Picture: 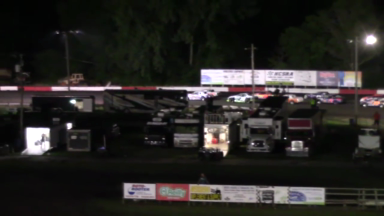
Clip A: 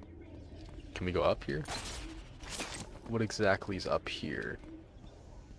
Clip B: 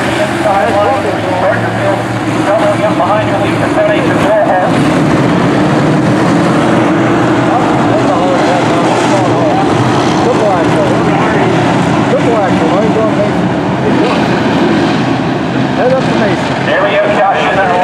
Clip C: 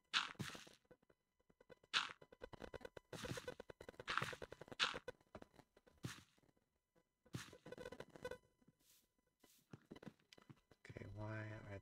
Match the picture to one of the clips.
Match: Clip B